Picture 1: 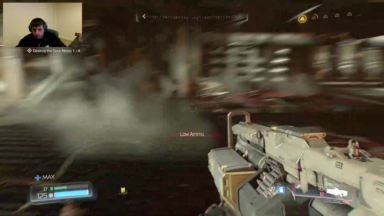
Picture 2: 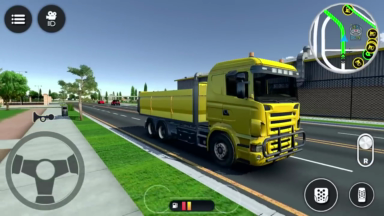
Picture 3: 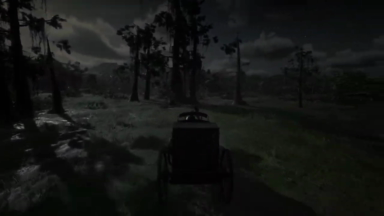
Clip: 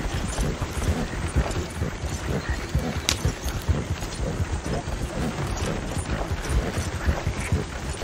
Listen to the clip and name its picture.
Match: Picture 3